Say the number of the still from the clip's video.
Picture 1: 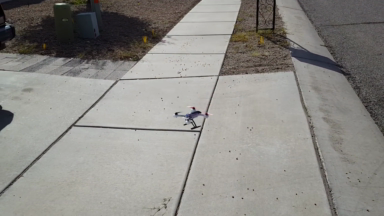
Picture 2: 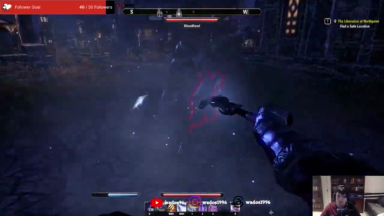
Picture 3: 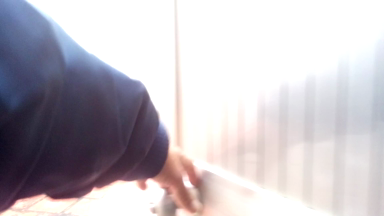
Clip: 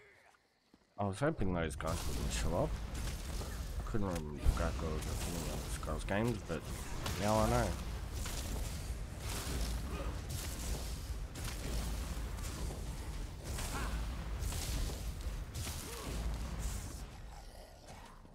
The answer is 2